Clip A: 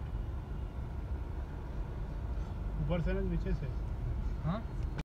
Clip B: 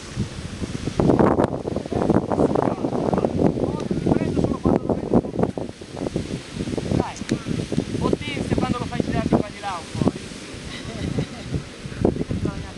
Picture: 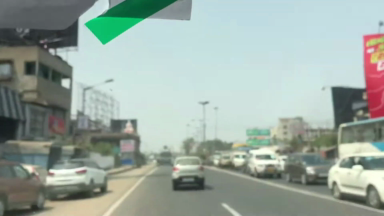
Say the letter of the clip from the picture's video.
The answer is A